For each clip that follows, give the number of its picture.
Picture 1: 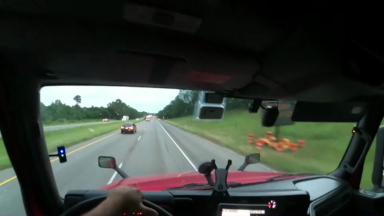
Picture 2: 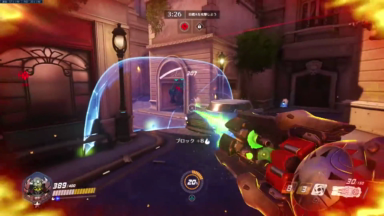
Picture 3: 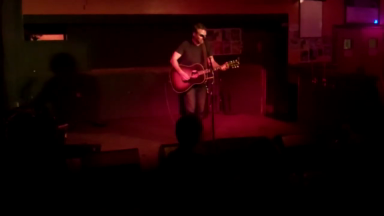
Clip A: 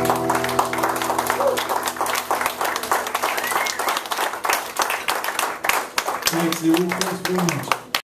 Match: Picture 3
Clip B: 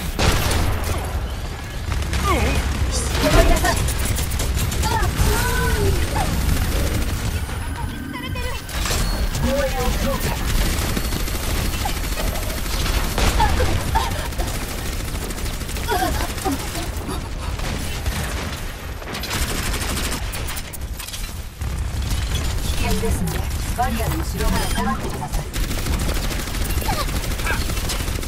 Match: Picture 2